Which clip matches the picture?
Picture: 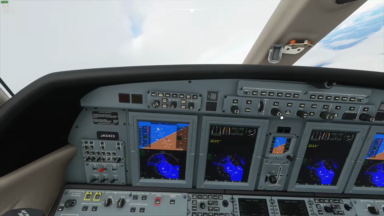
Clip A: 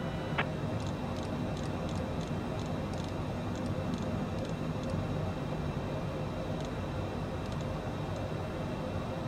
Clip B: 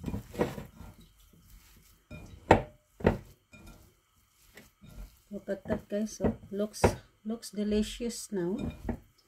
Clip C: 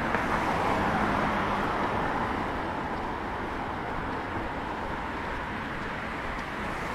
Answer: A